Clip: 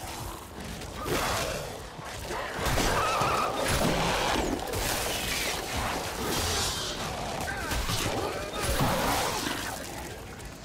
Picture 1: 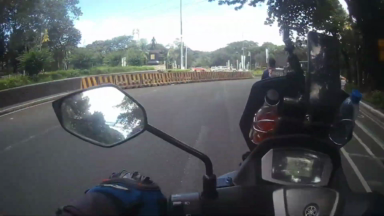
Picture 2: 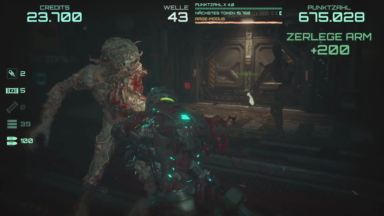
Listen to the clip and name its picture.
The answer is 2